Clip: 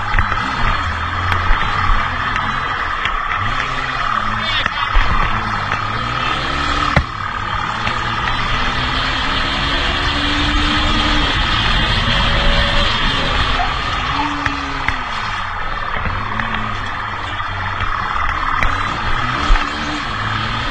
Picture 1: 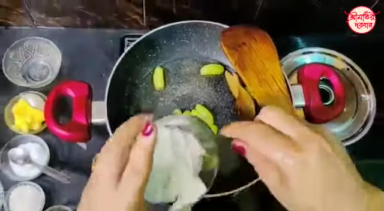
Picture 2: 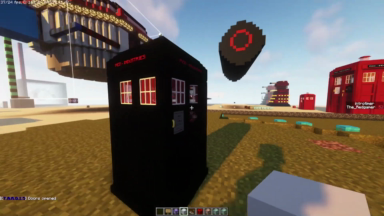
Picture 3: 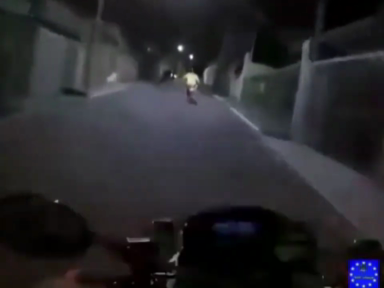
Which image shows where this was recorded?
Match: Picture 3